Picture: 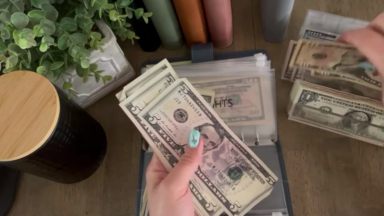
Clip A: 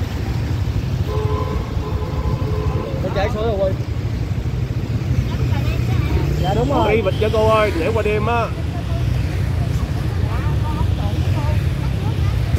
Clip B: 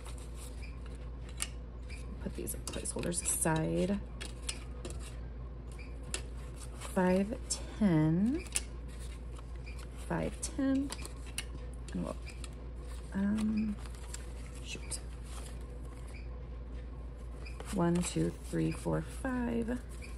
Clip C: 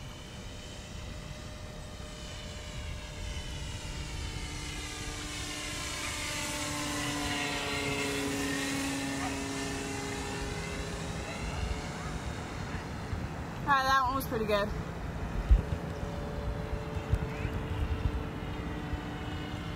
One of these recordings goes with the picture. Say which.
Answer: B